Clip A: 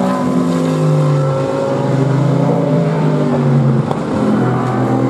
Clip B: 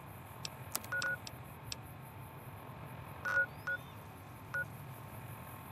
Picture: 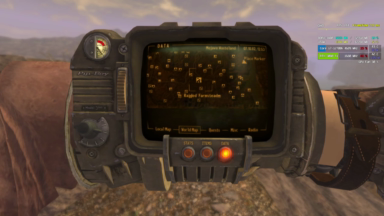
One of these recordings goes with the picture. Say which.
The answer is B